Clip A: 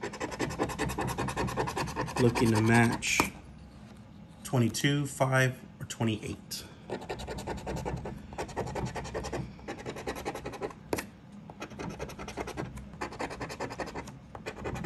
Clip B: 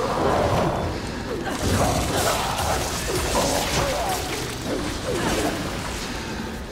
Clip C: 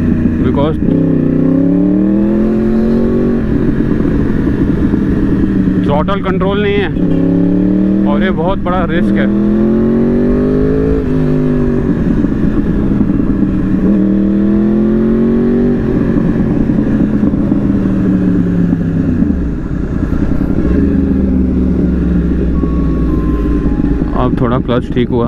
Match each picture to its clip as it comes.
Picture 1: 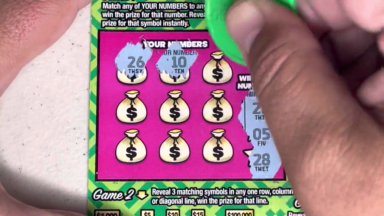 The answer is A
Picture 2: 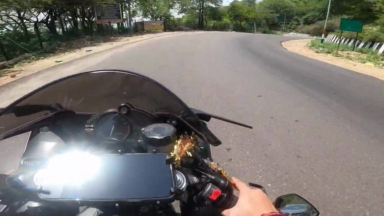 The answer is C